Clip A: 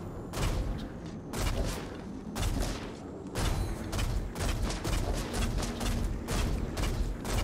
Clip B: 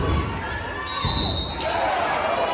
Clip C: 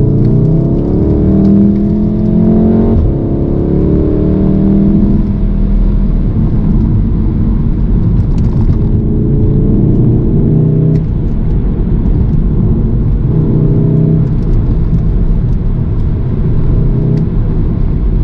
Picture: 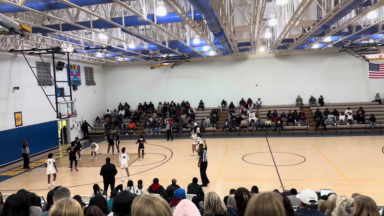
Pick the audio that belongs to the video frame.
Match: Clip B